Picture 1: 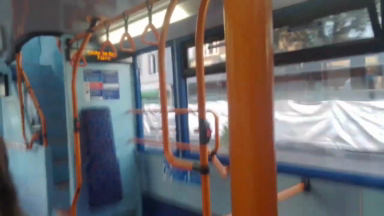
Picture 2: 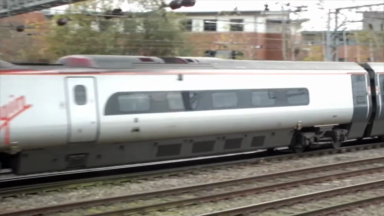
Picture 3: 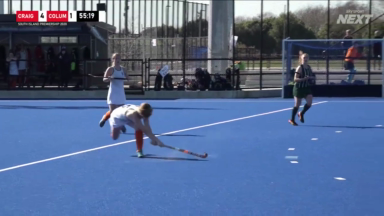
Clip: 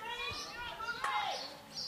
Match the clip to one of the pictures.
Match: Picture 3